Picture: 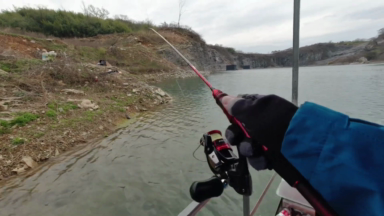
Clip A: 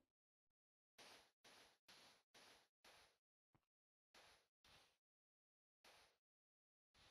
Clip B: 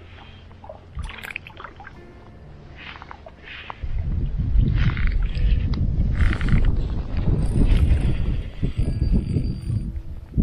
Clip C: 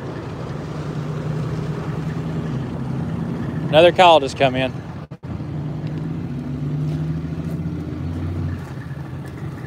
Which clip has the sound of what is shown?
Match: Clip B